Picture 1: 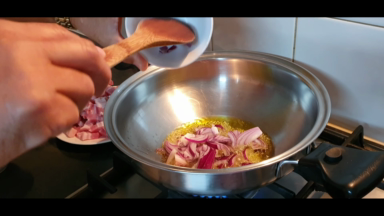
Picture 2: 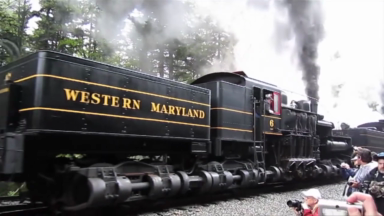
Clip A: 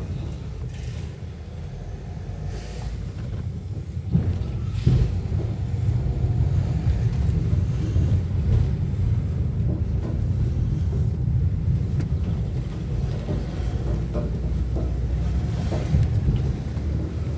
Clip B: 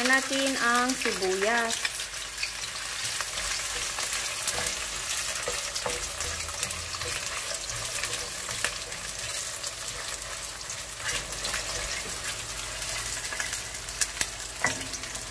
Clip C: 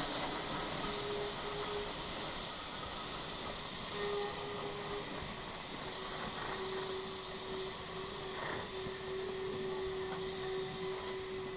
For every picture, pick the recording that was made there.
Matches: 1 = B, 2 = C